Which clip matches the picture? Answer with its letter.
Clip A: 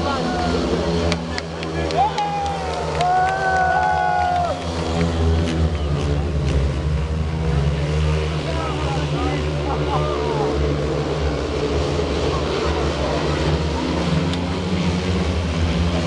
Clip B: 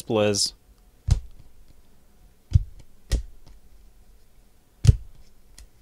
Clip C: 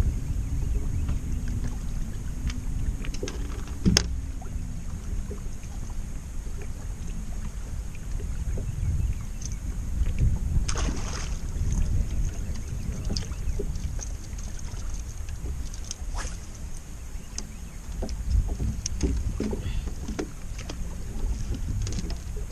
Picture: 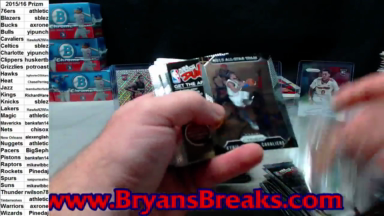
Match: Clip B